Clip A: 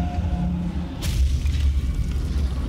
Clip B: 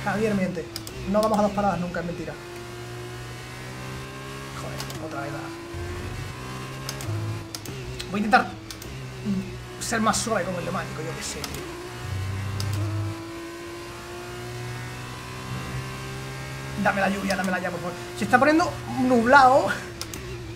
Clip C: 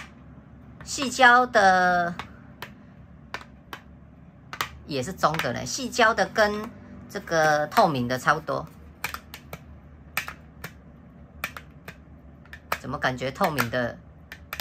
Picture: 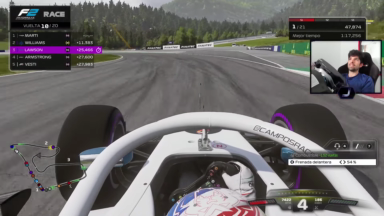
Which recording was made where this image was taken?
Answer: B